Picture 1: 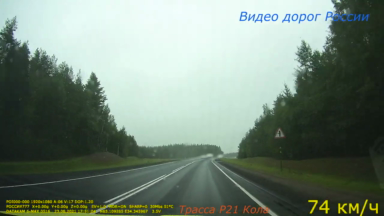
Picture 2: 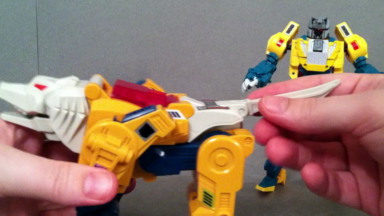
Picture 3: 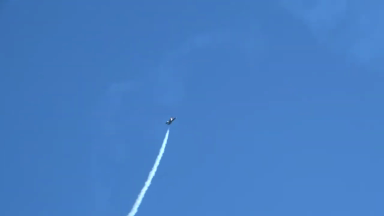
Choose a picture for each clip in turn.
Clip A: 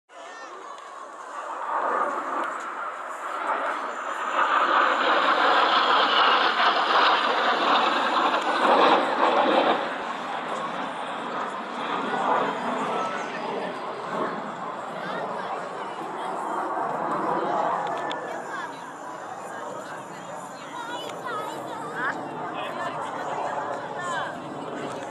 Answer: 3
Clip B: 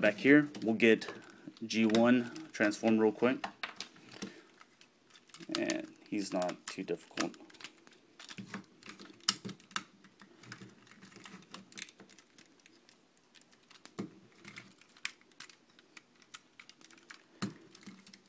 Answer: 2